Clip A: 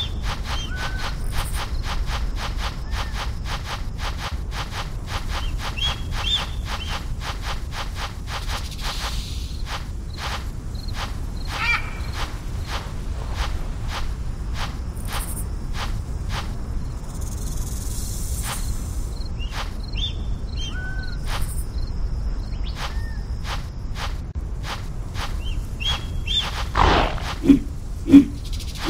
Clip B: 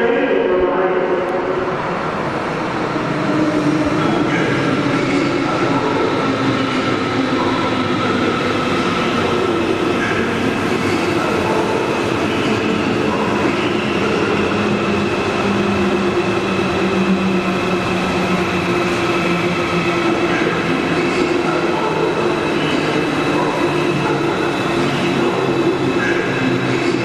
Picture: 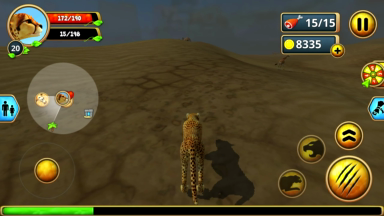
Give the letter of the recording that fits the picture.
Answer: A